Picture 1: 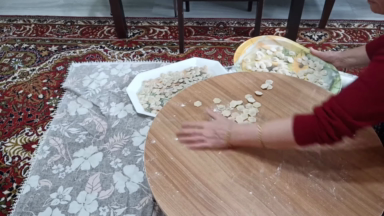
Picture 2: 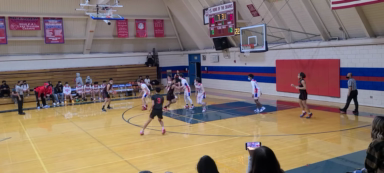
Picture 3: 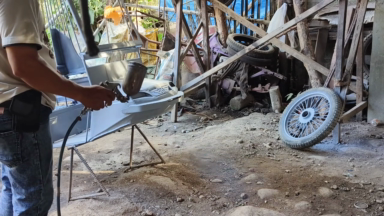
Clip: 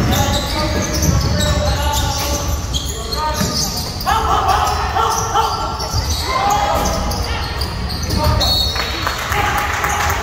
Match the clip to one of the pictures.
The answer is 2